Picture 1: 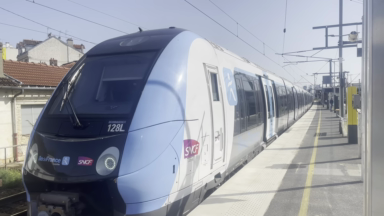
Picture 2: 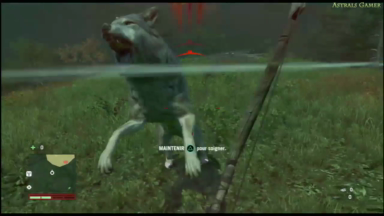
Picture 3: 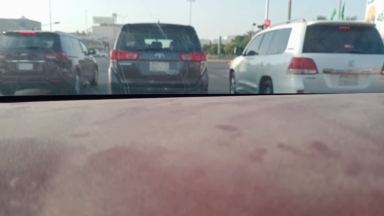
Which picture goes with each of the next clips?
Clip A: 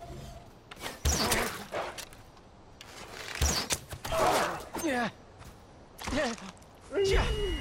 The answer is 2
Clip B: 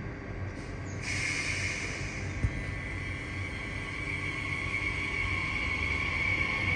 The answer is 1